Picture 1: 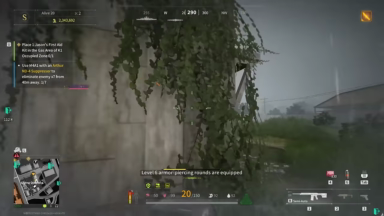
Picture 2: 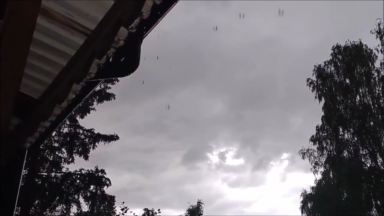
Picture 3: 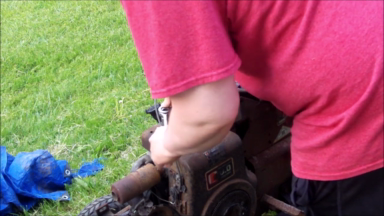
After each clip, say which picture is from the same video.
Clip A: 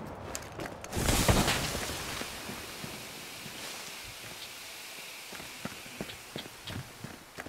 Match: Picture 1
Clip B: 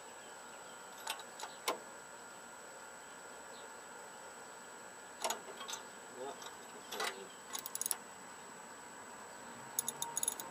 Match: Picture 3